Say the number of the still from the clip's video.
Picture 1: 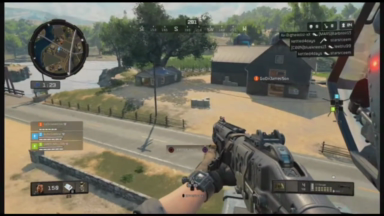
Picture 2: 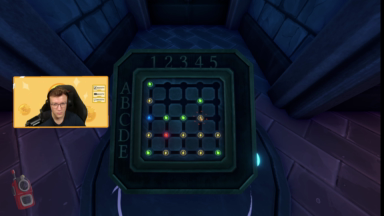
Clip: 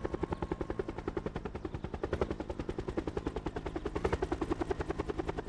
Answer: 1